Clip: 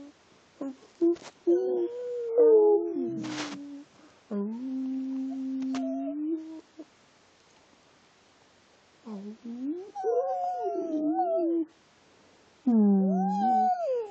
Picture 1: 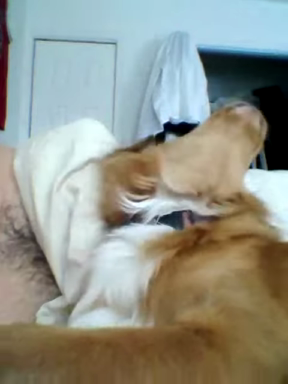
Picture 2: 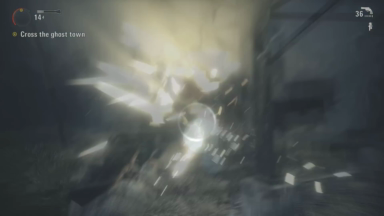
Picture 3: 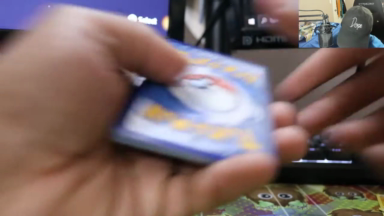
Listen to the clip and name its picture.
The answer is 1